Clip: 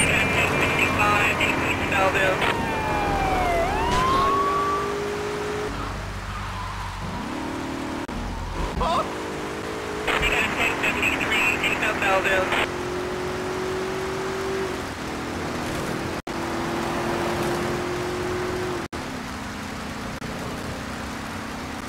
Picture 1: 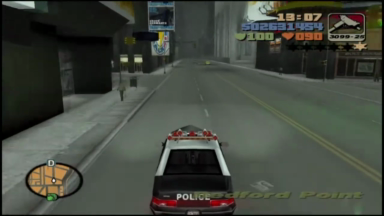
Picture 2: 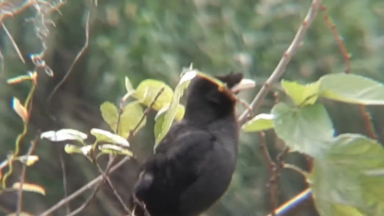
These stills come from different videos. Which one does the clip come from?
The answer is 1